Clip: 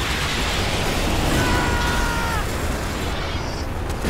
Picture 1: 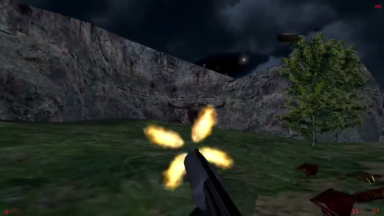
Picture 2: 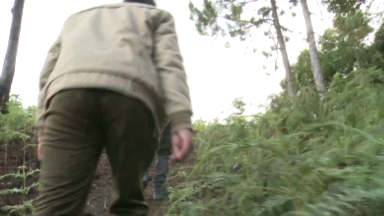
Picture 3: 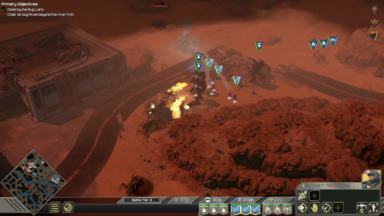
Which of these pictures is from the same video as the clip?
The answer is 3